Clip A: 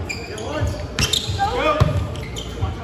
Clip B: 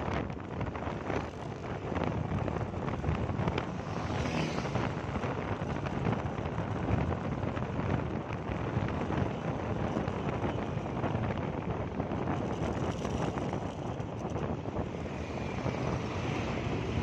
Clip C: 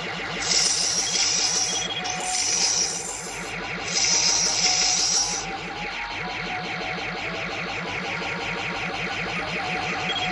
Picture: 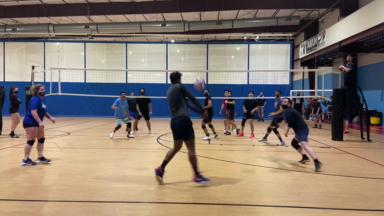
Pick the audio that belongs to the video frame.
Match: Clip A